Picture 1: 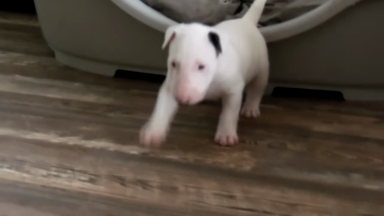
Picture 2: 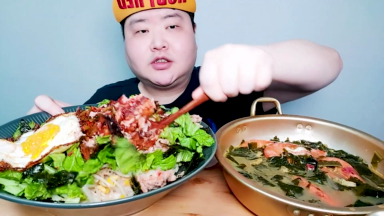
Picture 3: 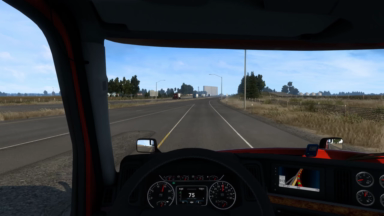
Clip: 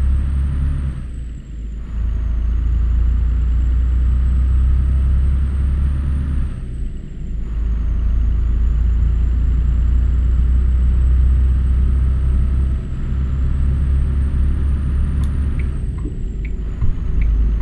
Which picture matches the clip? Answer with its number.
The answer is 3